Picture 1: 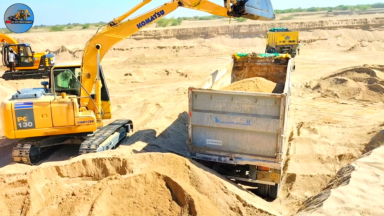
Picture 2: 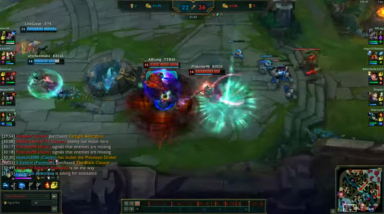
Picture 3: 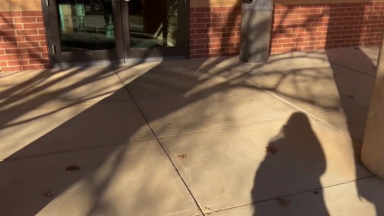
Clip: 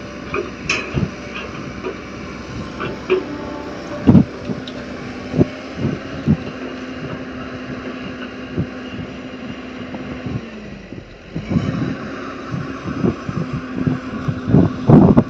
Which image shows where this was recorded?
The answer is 1